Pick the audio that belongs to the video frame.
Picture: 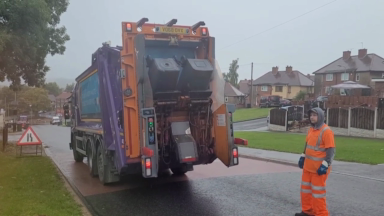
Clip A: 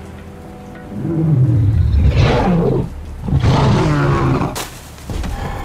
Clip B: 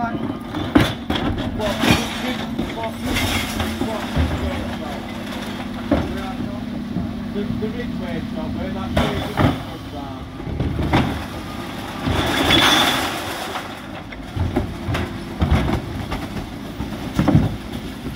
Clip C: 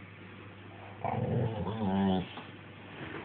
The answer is B